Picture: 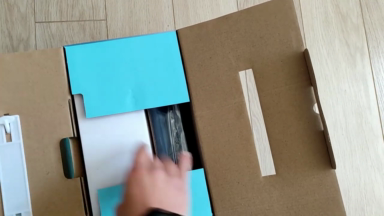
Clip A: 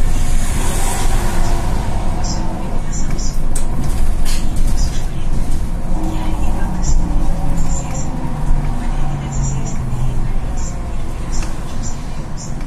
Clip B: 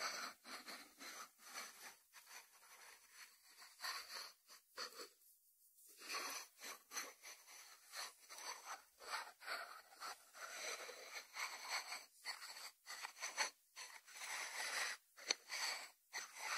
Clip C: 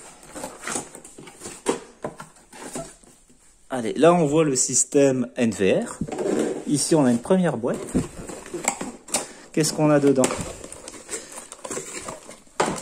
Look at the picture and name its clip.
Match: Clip C